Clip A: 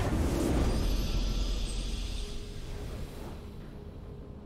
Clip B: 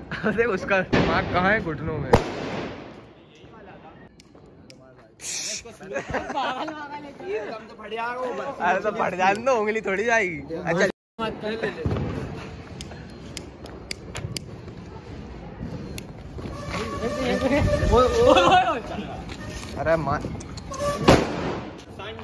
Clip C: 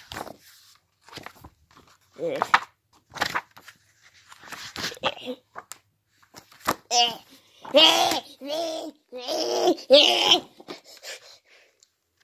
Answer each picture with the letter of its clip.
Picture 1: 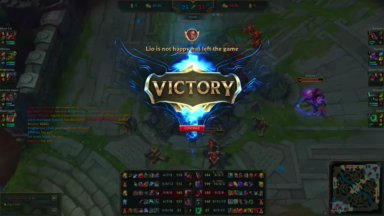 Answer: A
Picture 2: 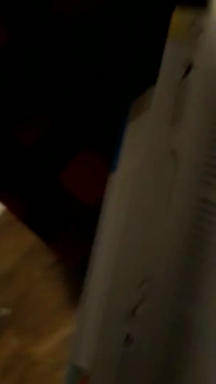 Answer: C